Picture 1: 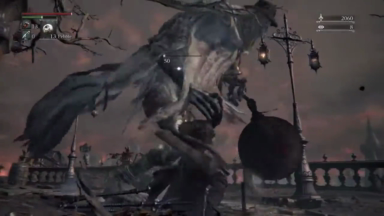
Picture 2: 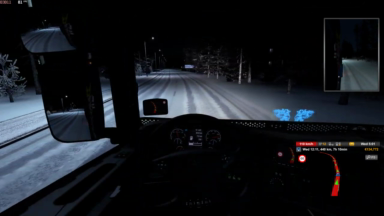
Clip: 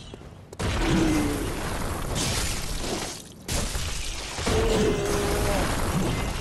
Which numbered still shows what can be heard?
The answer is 1